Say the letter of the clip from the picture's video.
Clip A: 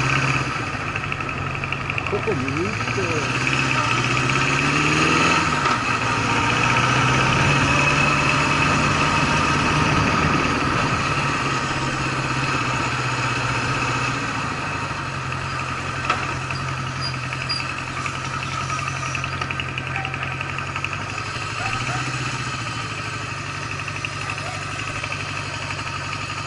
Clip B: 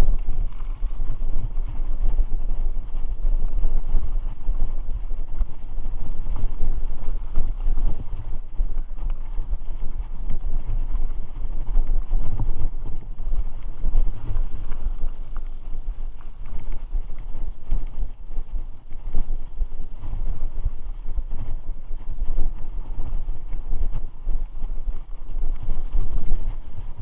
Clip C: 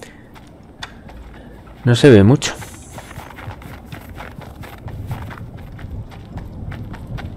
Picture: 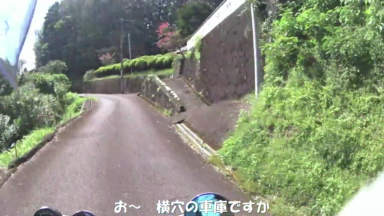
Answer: A